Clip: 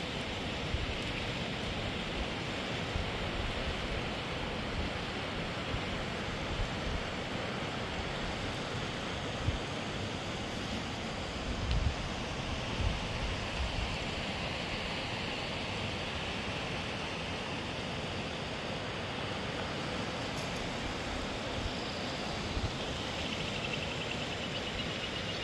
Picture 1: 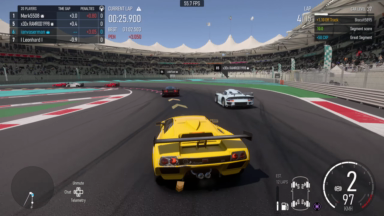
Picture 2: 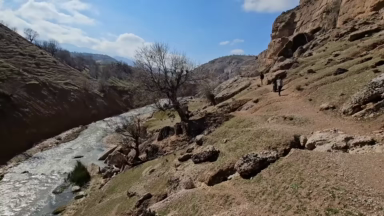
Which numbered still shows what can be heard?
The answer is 2